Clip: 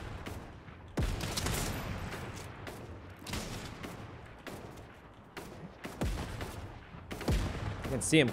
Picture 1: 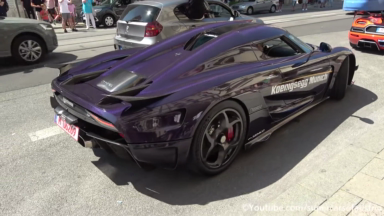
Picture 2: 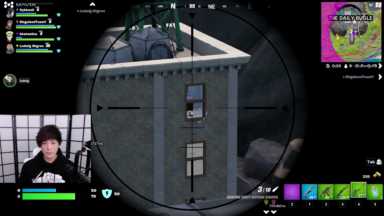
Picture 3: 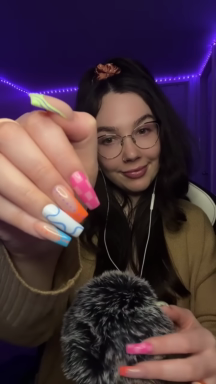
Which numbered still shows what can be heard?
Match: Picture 2